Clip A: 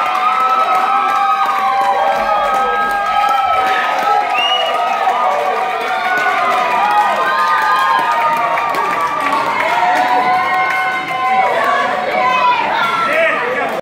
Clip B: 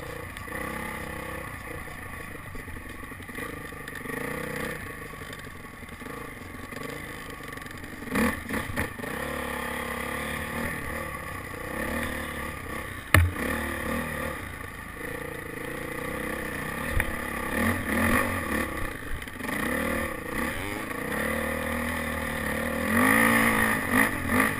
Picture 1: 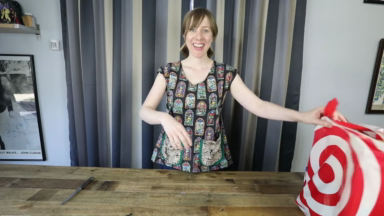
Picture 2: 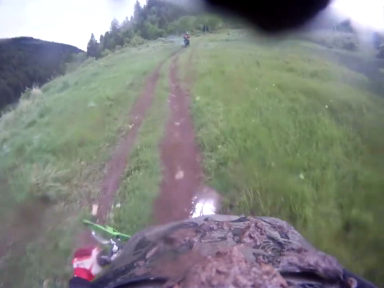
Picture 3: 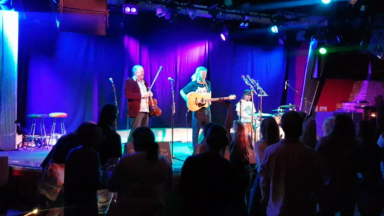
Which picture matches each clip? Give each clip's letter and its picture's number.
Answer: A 3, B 2